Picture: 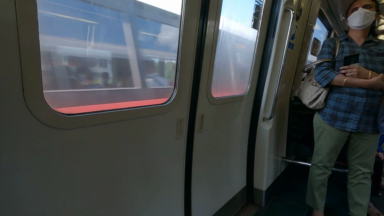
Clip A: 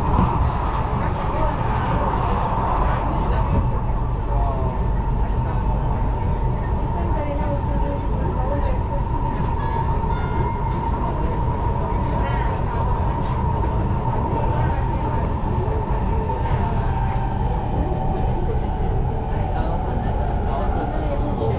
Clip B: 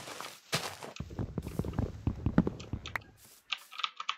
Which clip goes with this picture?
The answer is A